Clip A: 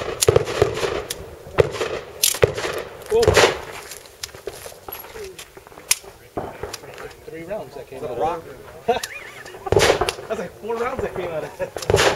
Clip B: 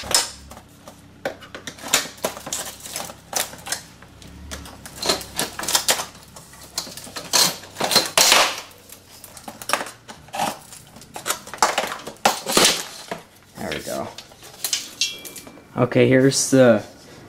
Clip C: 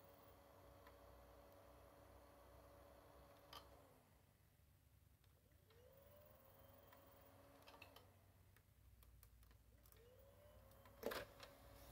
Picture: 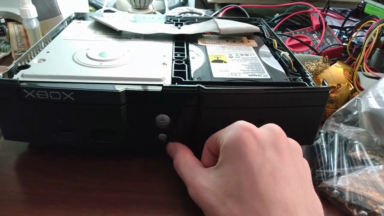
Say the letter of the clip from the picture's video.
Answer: C